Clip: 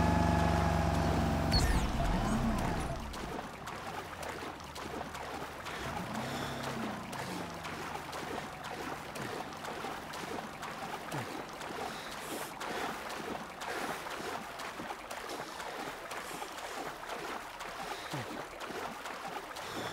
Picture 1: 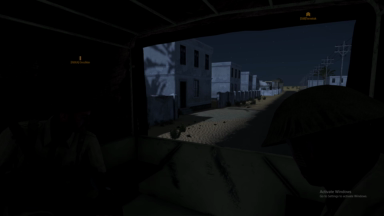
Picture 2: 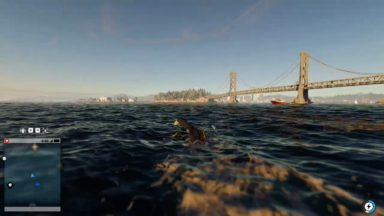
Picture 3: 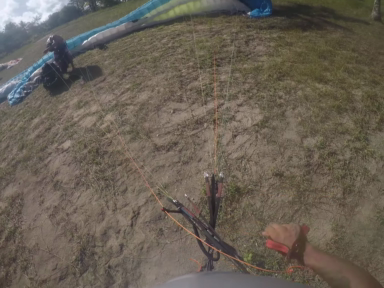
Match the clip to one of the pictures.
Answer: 2